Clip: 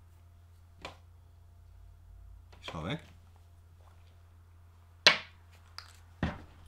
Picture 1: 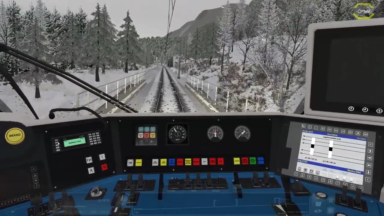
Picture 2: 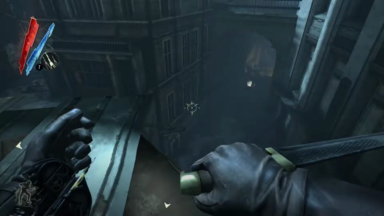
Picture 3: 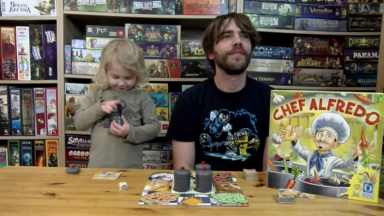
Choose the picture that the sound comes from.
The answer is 3